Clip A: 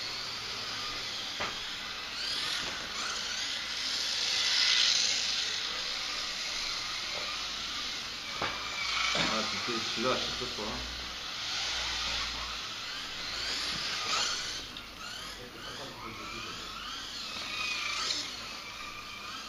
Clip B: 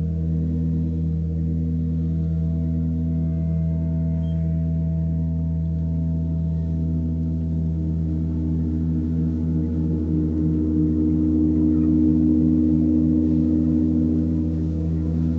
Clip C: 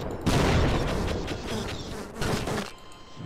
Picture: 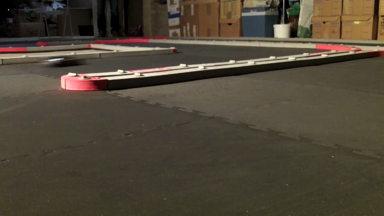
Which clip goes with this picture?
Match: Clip A